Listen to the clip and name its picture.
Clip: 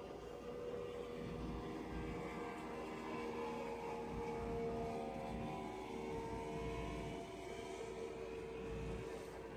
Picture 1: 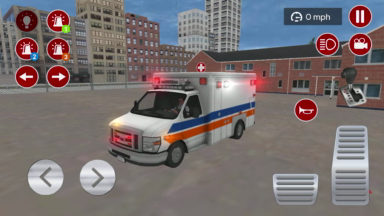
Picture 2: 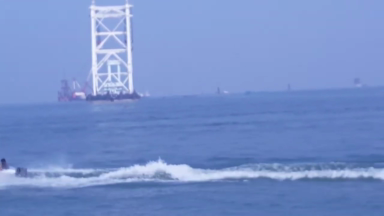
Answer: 2